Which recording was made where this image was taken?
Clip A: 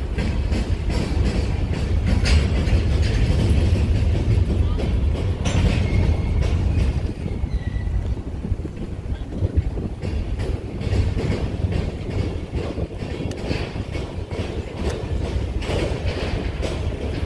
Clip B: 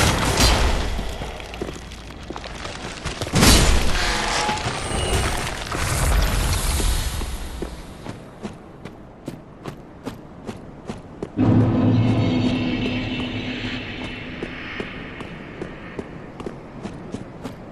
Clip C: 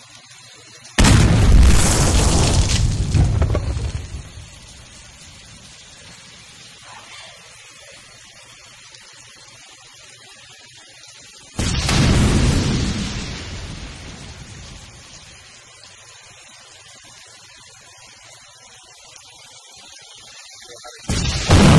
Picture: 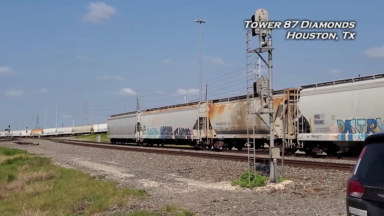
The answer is A